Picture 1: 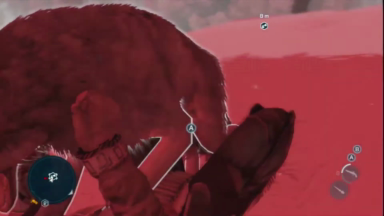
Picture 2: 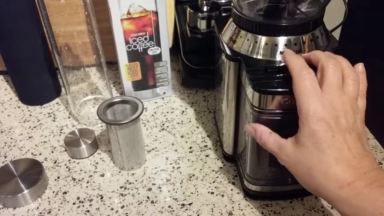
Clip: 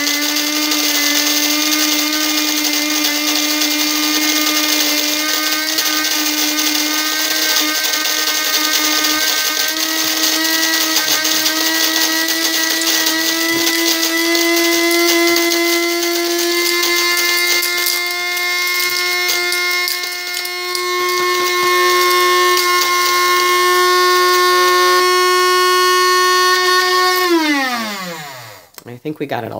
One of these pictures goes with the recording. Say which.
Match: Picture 2